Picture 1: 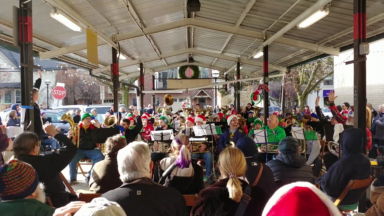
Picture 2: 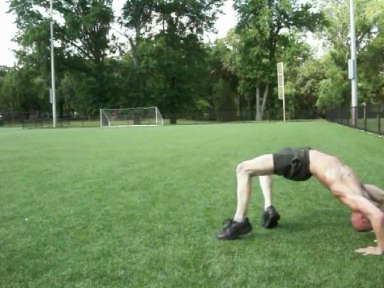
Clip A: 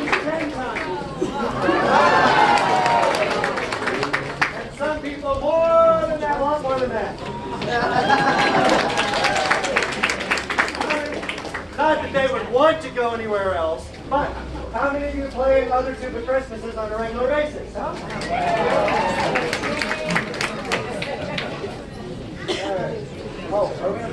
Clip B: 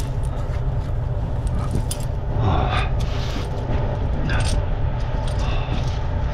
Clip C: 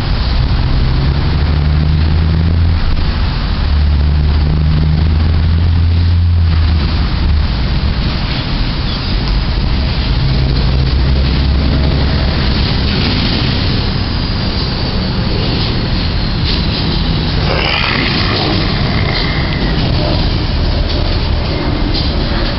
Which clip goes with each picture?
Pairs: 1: A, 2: C